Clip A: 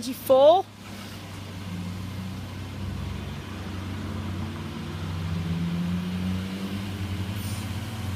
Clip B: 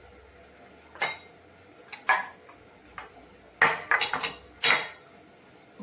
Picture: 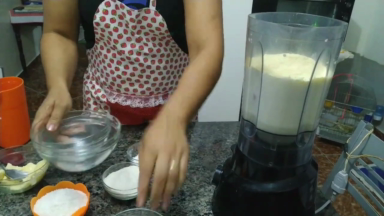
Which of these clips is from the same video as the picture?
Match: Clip B